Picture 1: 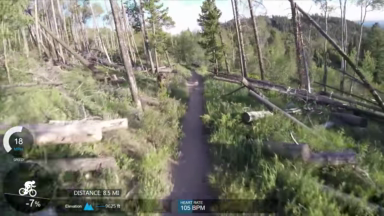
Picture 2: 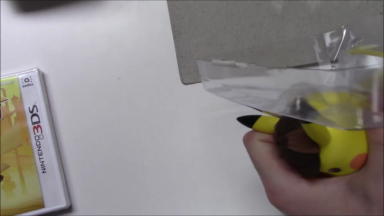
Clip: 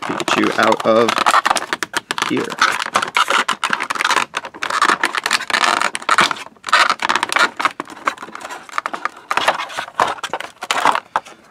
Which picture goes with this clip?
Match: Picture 2